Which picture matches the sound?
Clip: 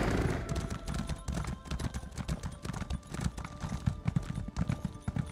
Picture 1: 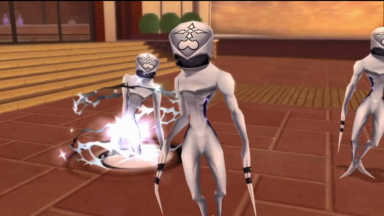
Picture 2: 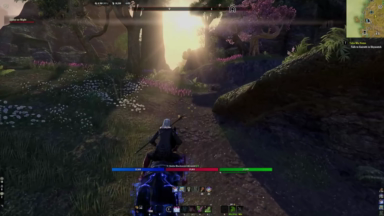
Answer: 2